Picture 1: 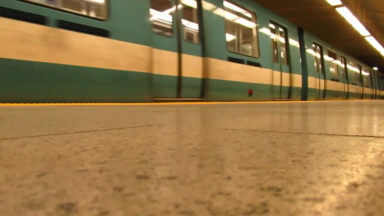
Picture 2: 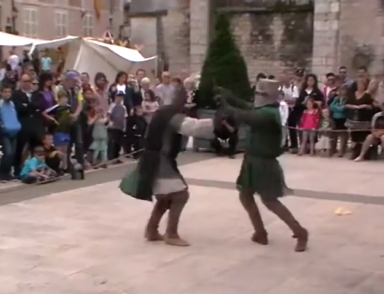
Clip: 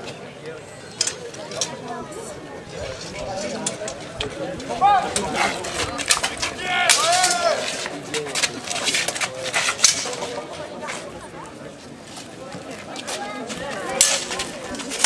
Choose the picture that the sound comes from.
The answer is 2